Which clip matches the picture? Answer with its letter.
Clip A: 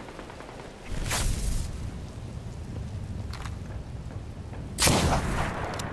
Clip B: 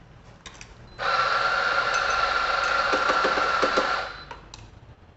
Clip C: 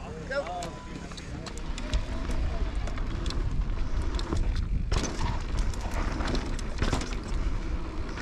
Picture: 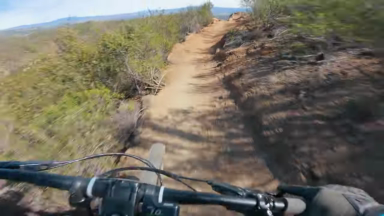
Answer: C